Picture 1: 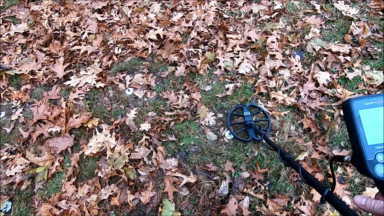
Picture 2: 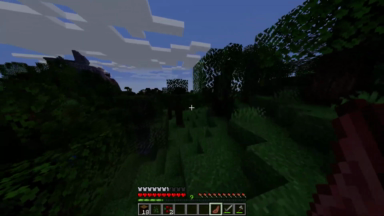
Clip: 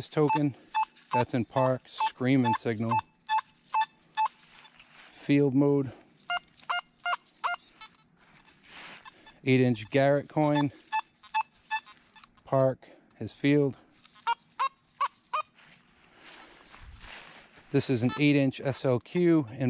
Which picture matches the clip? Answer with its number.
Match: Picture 1